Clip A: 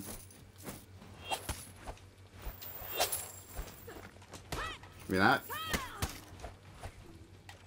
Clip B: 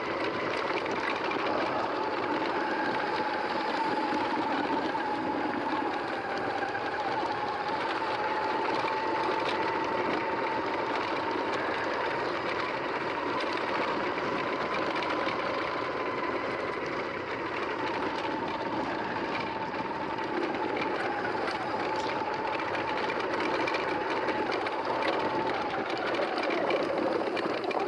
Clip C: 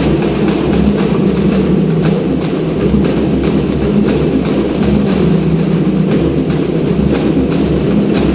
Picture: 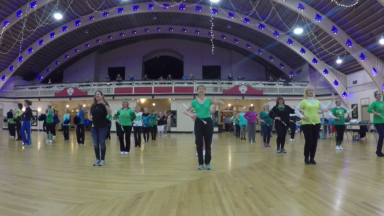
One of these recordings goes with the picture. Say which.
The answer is C